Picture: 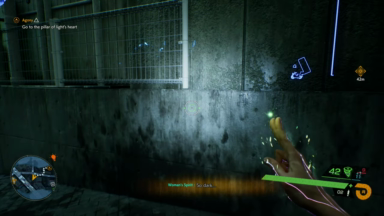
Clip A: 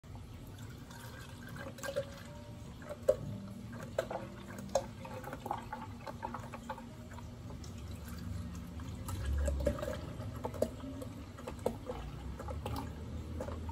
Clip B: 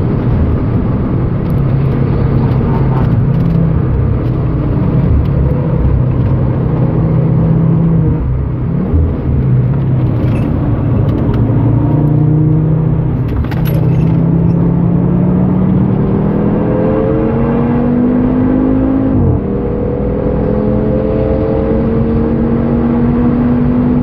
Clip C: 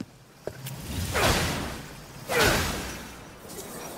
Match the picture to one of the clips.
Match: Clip C